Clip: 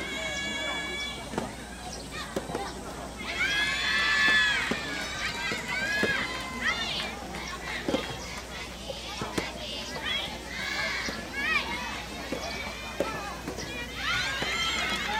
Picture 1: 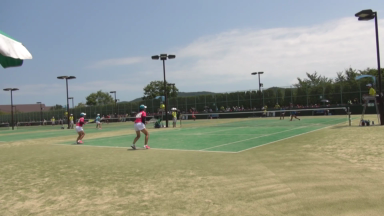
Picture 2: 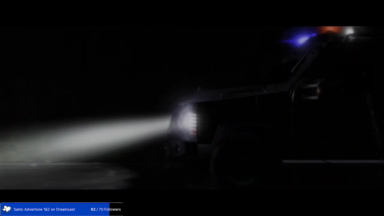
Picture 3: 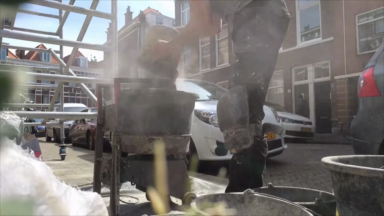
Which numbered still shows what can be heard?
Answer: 1